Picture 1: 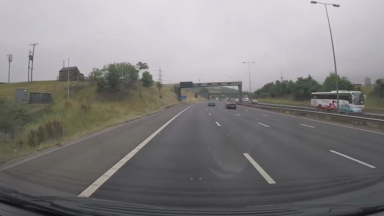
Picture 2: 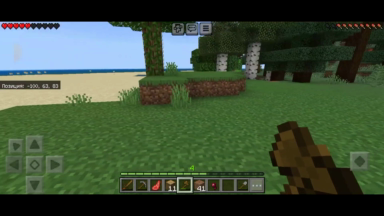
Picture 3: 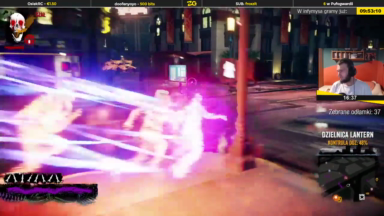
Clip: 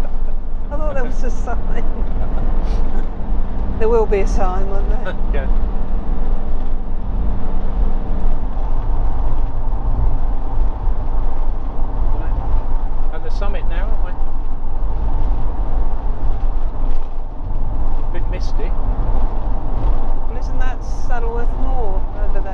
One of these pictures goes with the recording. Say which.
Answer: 1